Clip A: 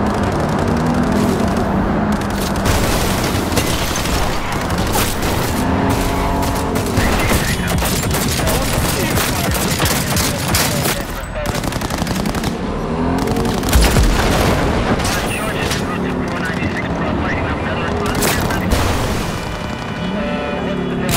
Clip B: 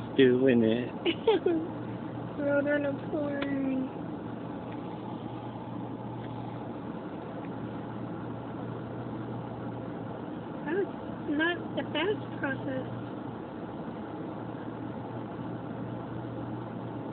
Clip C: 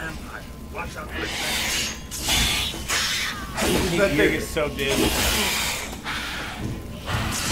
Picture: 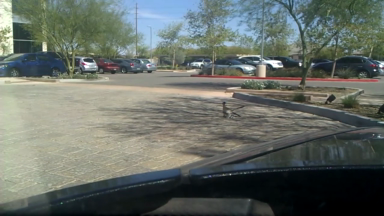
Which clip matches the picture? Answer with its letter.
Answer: B